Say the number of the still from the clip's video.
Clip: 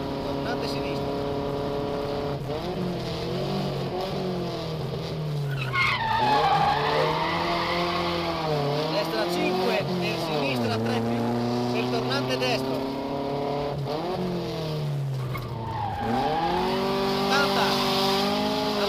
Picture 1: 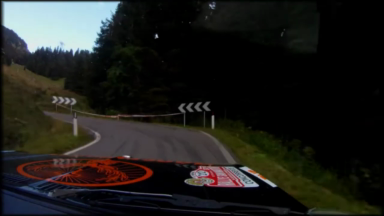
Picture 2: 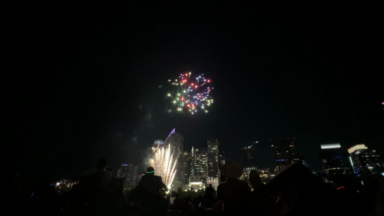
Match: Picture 1